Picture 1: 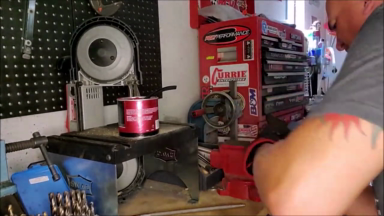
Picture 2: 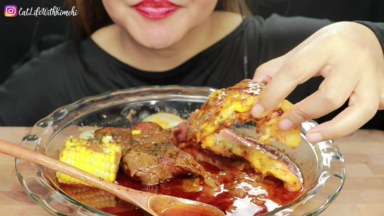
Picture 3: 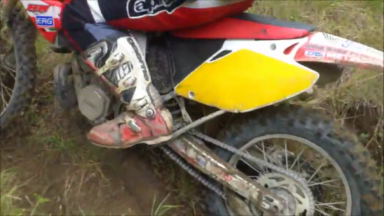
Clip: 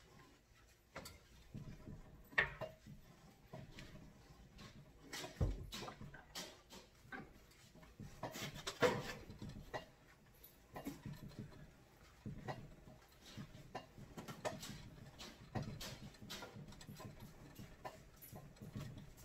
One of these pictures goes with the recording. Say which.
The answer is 1